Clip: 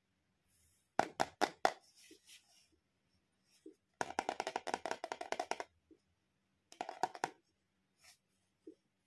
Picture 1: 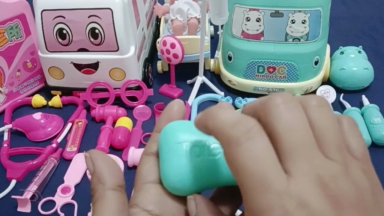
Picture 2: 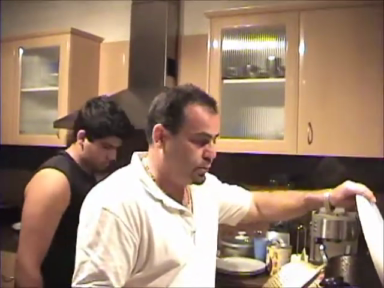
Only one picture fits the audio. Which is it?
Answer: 1